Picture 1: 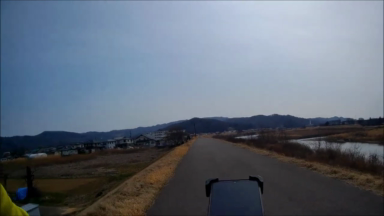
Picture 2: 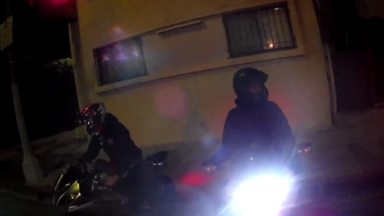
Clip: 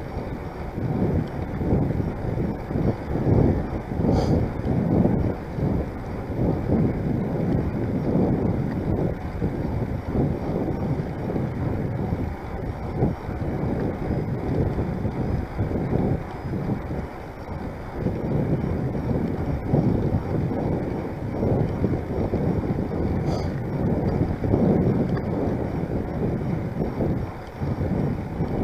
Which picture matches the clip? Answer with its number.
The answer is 1